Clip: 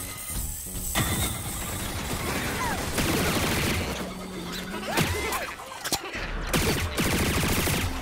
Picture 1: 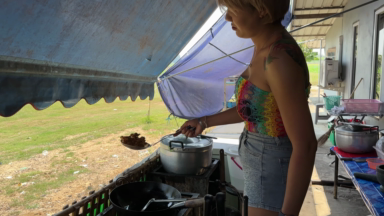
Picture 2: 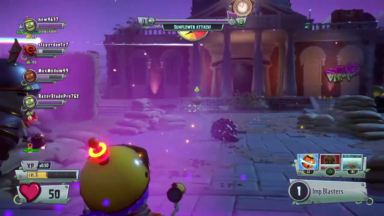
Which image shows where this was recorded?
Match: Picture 2